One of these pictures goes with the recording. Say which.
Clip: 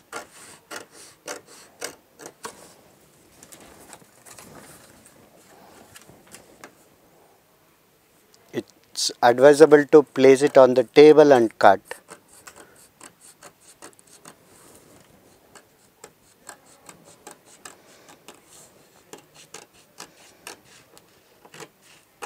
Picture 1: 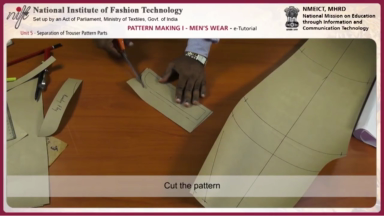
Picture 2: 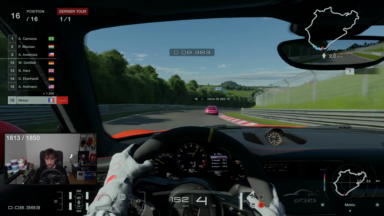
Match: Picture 1